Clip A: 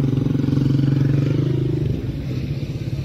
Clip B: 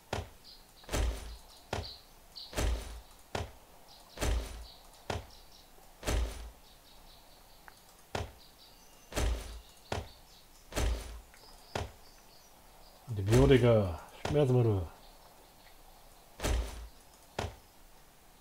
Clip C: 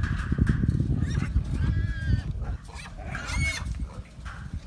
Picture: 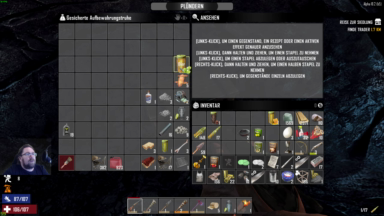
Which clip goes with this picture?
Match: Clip B